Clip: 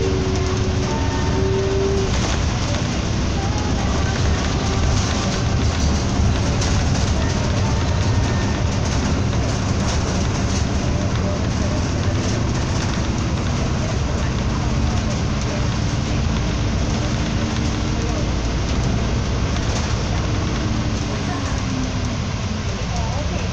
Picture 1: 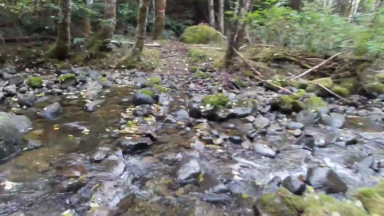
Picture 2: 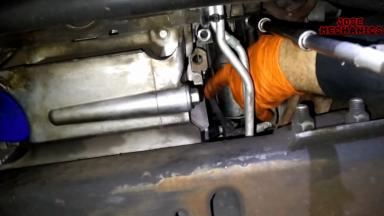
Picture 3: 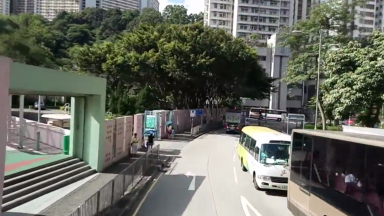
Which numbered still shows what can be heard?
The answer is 3